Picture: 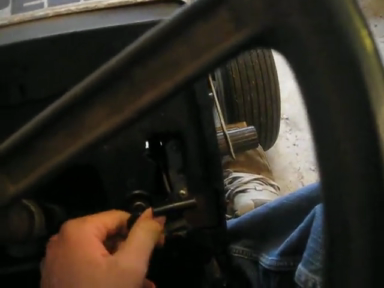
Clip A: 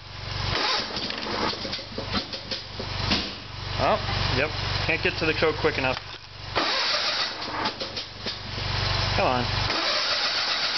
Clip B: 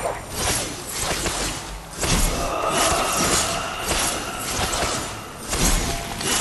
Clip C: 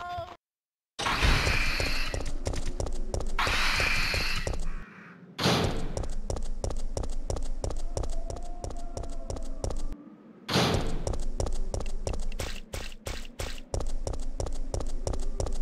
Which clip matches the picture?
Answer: A